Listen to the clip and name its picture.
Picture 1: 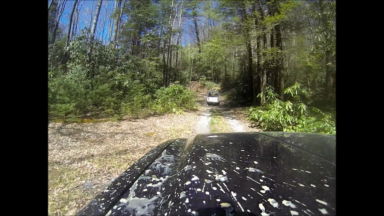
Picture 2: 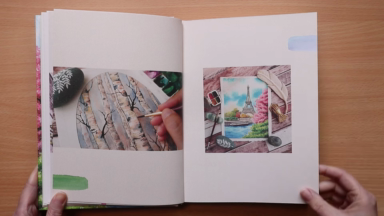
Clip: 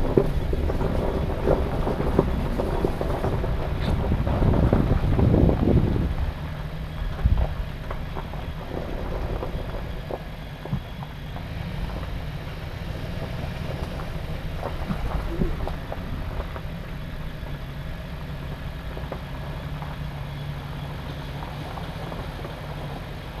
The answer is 1